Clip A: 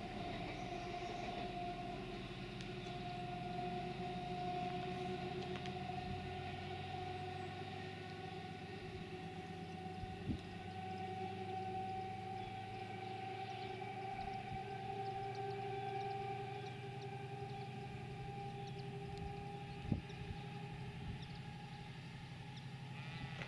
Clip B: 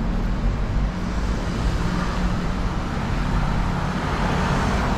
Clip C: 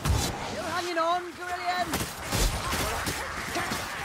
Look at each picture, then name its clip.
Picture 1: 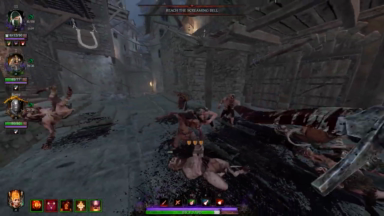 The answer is C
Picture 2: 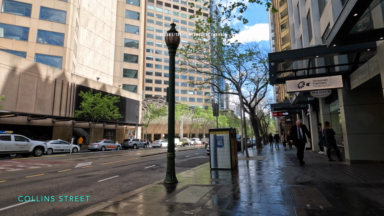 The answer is B